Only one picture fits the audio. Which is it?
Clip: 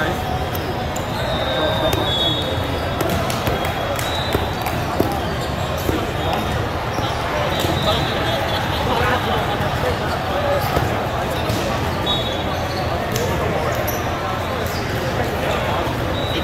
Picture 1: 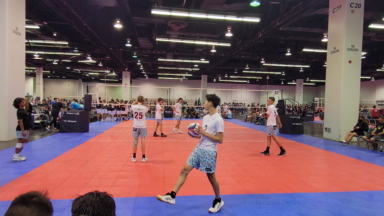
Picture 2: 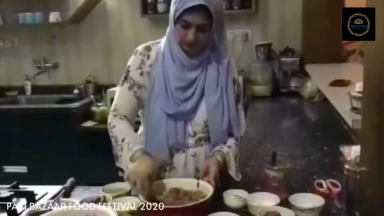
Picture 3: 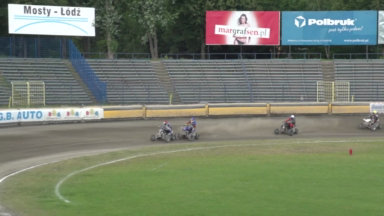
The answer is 1